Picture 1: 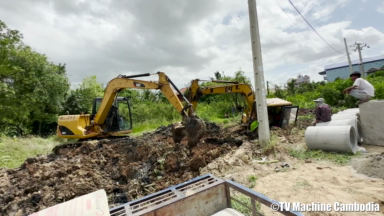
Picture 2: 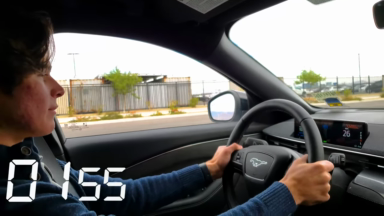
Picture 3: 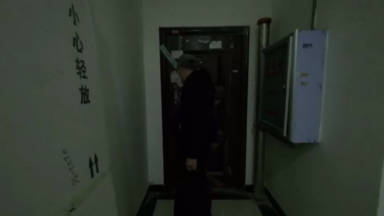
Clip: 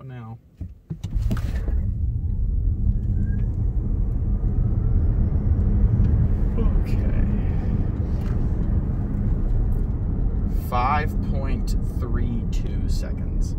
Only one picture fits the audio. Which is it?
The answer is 2